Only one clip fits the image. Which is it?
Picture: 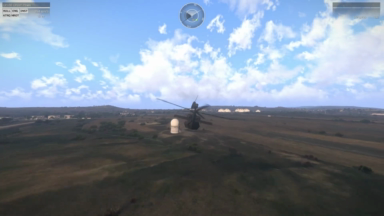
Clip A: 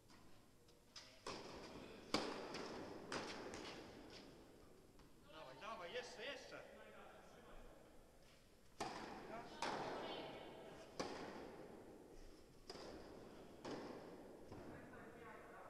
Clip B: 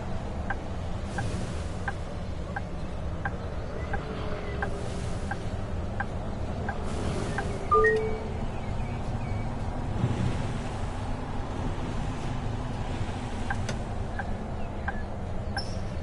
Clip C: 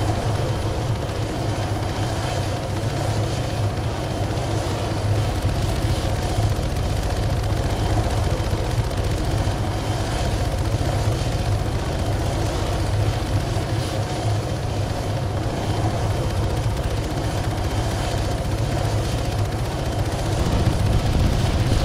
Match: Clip C